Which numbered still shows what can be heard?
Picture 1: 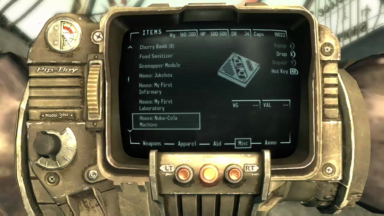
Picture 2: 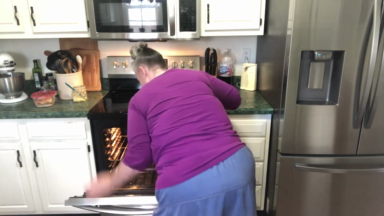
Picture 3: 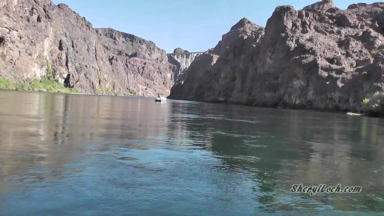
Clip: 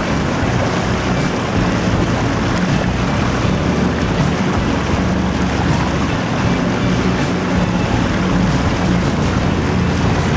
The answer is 3